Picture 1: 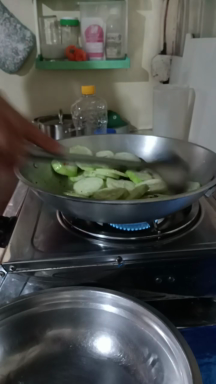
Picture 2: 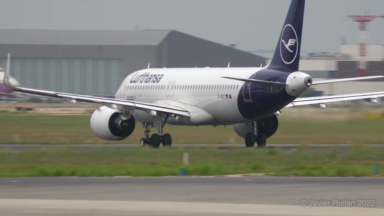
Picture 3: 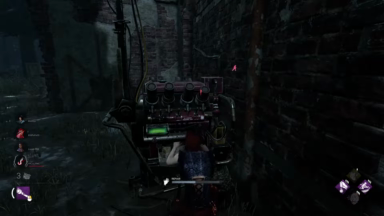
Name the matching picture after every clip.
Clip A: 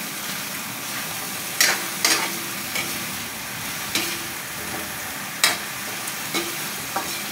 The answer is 1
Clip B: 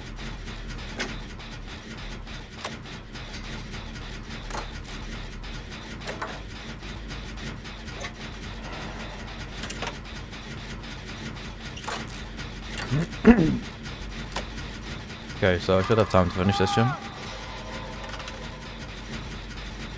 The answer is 3